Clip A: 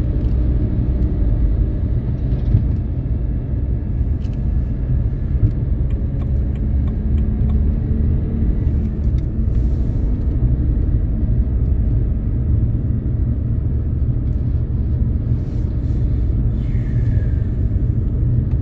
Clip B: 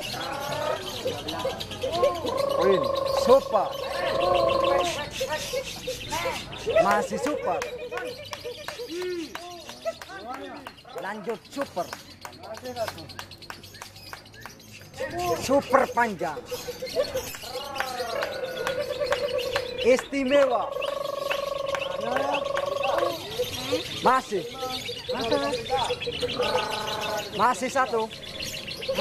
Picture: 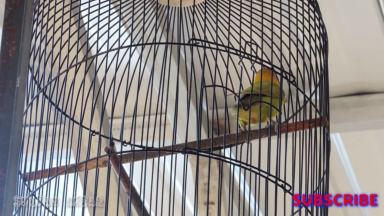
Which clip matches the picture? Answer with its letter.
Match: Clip B